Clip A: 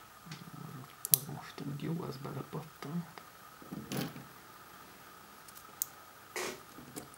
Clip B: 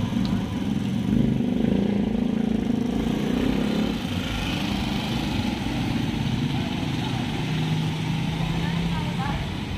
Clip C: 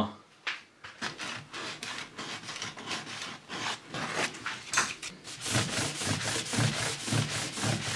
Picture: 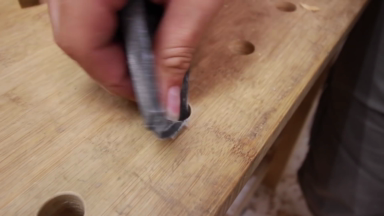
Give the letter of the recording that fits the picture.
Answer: C